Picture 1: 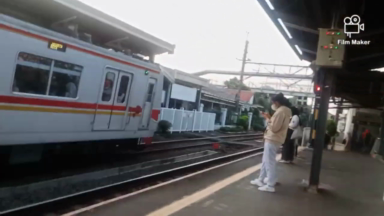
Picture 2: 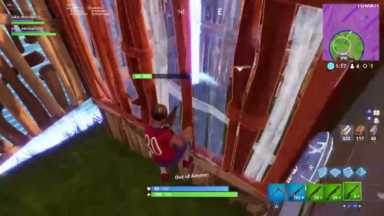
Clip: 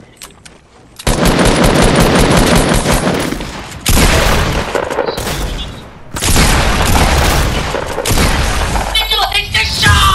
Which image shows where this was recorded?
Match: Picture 2